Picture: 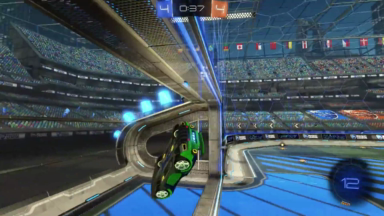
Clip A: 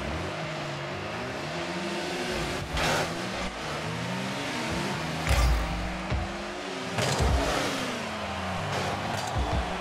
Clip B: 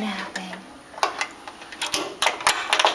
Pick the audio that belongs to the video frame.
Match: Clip A